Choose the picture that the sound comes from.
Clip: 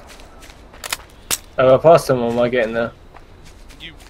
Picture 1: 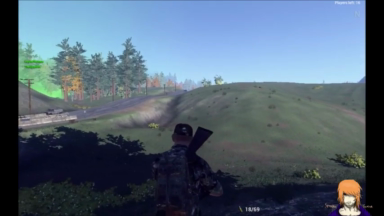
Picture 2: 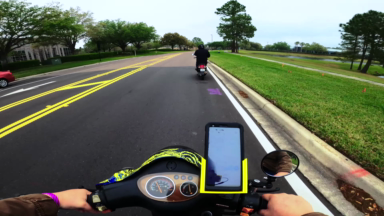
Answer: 1